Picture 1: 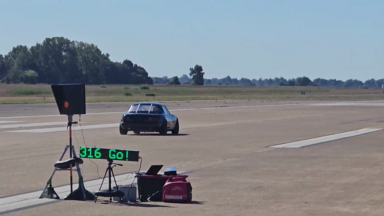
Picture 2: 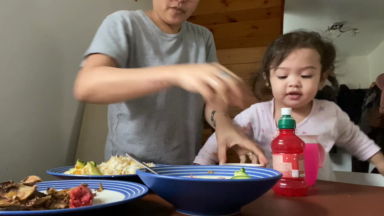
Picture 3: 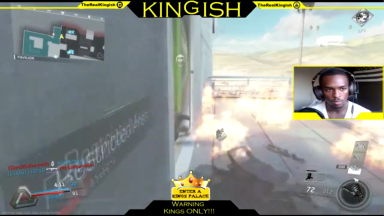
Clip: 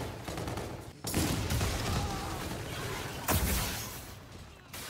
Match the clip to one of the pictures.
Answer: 3